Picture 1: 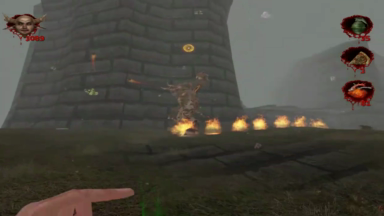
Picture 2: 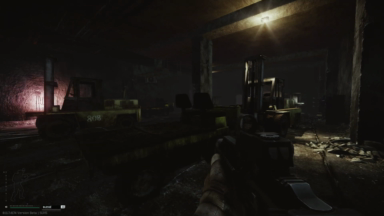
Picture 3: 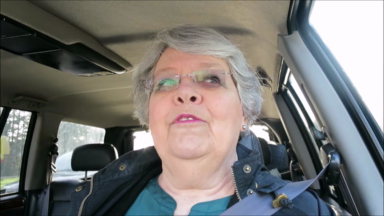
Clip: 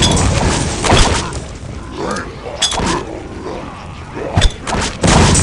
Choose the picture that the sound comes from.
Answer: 1